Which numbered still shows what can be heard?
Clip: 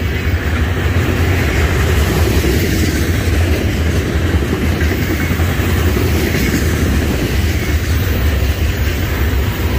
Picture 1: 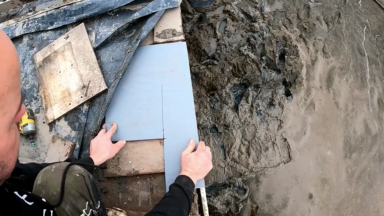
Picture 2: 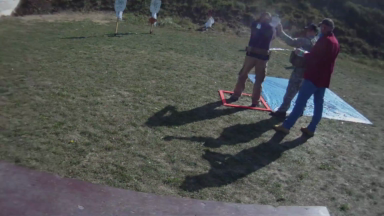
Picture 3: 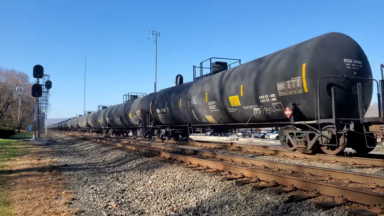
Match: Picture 3